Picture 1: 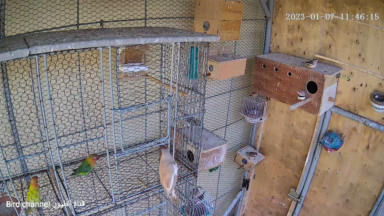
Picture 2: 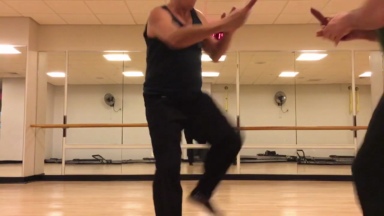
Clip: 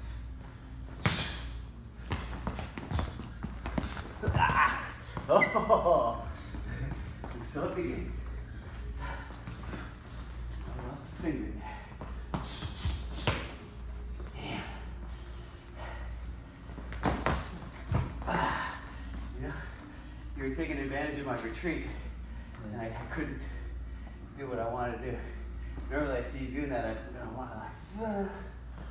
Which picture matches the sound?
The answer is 2